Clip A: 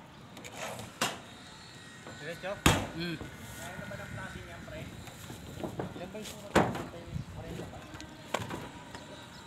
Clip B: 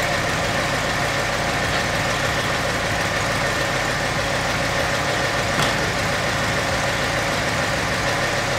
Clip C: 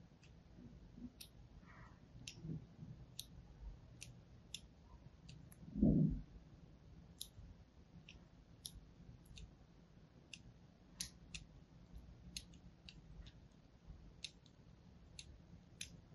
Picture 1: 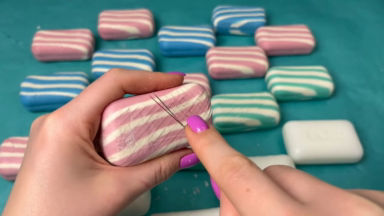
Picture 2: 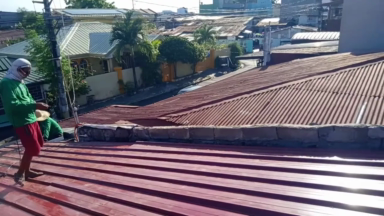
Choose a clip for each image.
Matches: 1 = C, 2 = A